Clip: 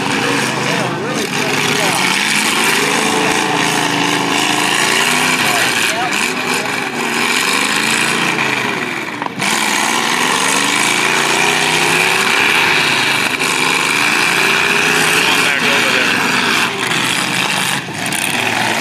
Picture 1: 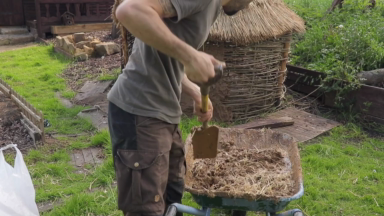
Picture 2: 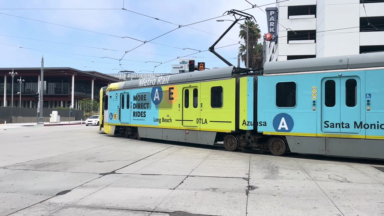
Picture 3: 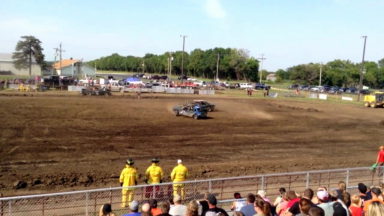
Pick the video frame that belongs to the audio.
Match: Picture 3